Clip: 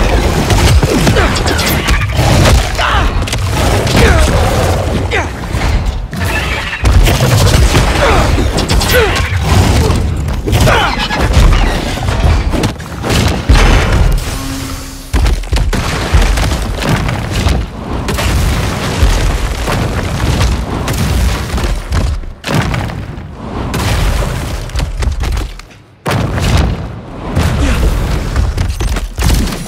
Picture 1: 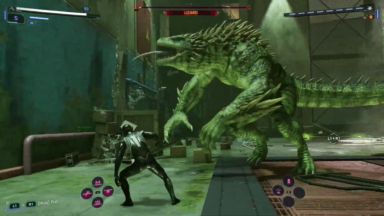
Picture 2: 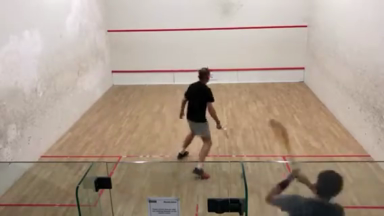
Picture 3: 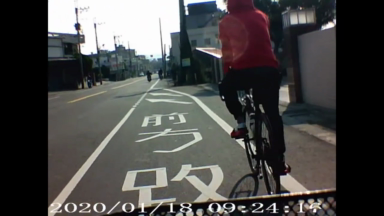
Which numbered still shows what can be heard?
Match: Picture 1